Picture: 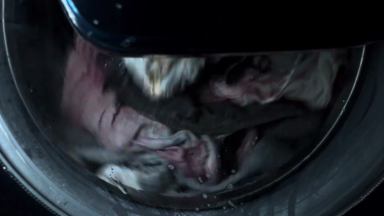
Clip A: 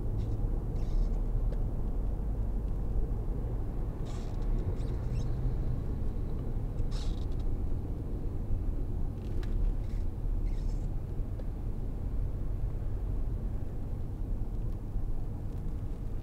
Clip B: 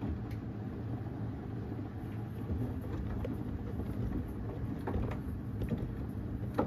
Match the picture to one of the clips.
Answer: B